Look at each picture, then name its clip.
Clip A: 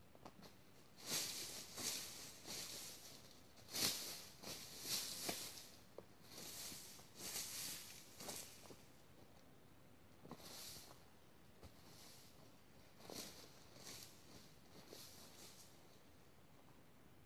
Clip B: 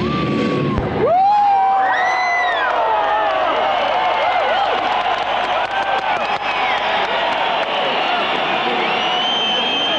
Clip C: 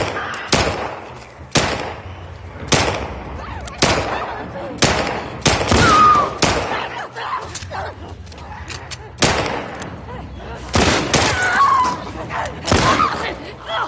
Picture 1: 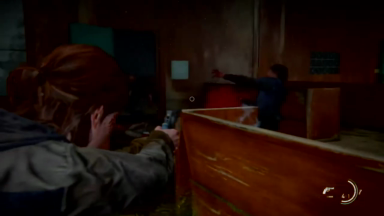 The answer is C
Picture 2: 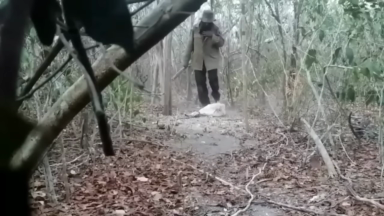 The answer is A